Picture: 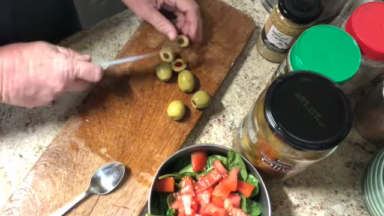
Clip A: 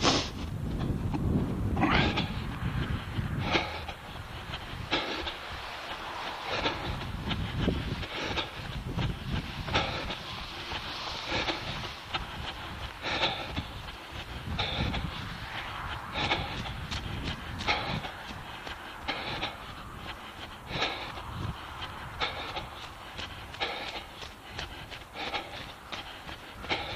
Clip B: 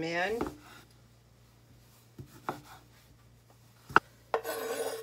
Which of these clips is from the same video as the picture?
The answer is B